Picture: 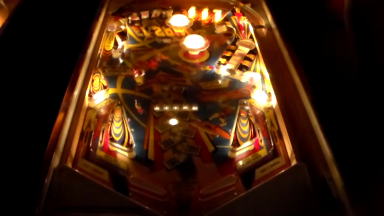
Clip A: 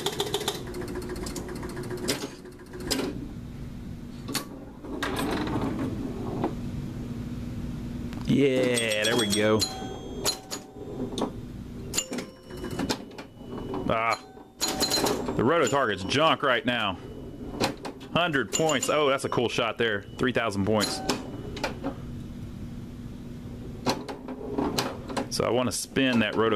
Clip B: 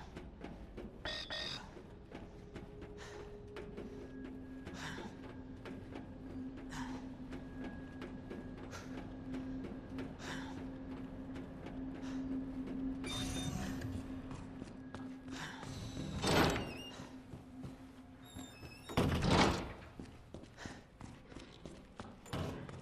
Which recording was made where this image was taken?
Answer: A